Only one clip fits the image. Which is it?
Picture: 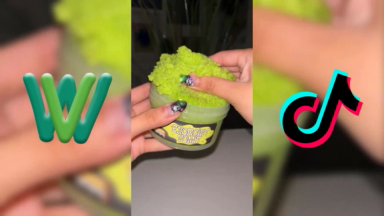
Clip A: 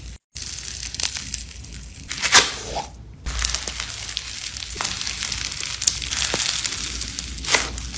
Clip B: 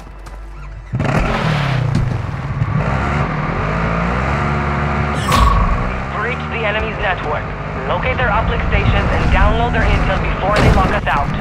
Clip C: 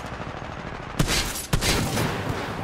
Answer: A